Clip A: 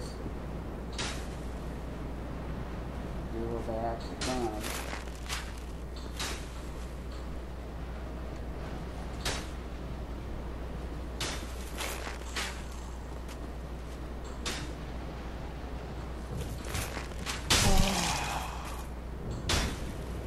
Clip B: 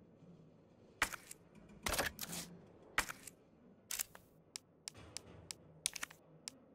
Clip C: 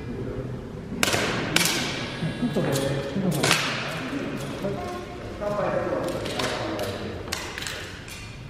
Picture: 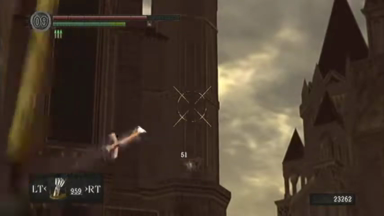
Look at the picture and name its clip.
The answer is A